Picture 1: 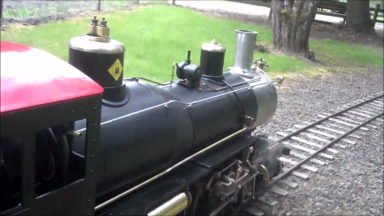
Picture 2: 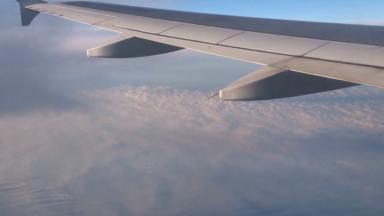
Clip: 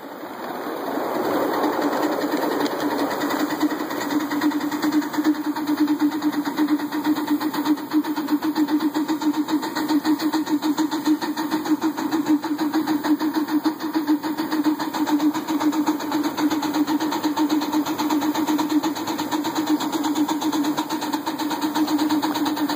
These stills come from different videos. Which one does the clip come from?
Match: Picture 1